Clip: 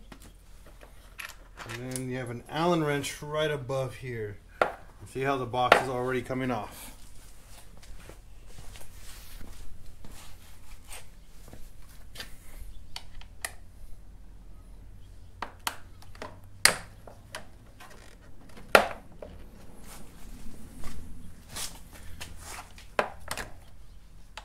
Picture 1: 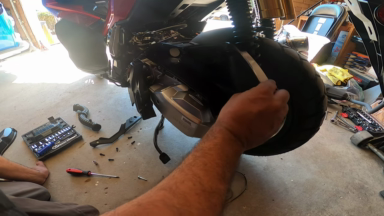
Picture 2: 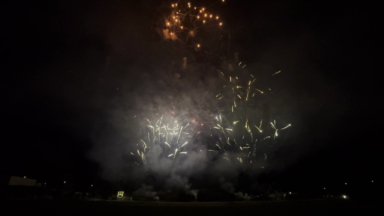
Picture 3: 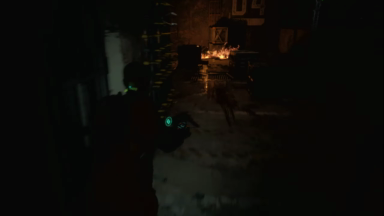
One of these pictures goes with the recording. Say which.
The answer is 1